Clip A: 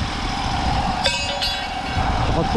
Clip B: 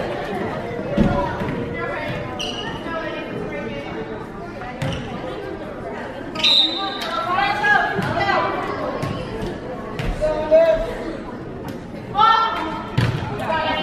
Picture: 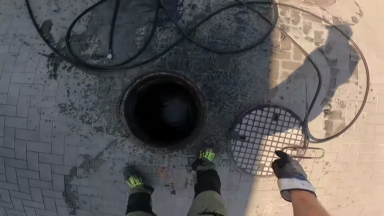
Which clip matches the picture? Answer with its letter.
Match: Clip A